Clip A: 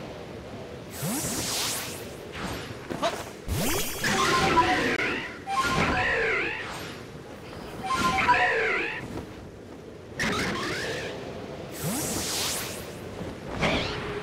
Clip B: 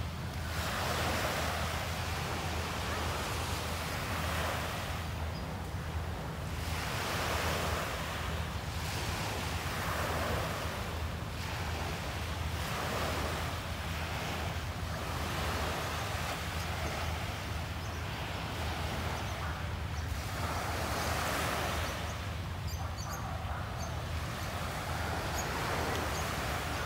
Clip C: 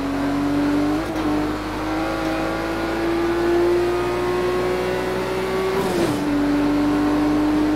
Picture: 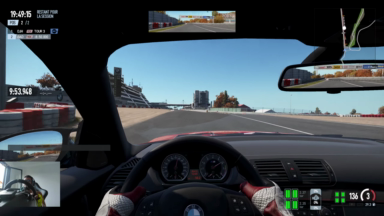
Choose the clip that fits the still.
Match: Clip C